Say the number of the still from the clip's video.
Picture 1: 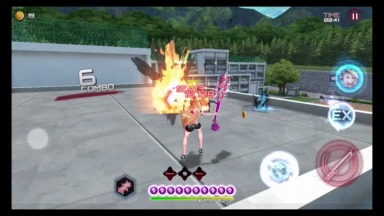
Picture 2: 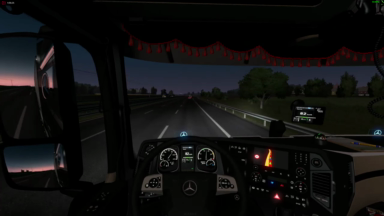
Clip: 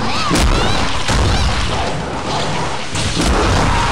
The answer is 1